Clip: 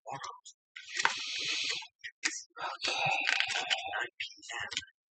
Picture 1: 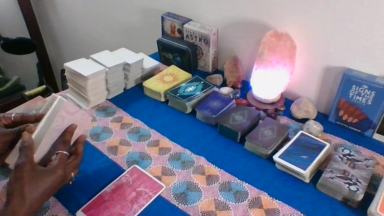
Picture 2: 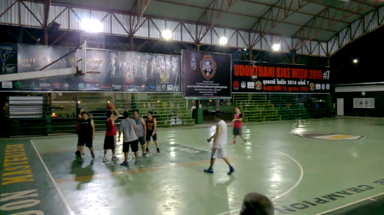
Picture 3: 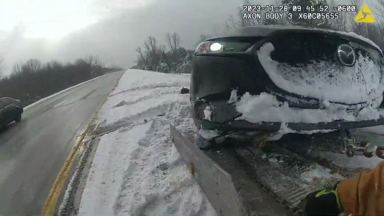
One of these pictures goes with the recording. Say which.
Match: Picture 1